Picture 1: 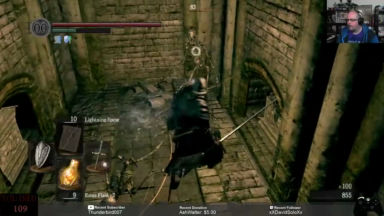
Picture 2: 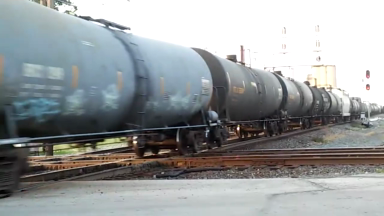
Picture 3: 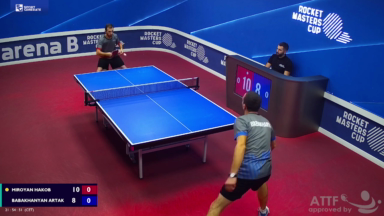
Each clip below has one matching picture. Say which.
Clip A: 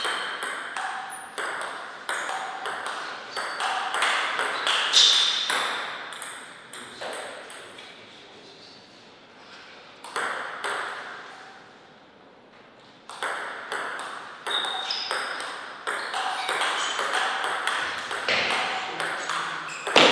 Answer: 3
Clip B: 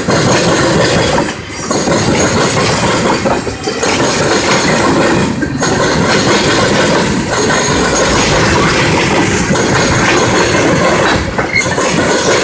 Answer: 2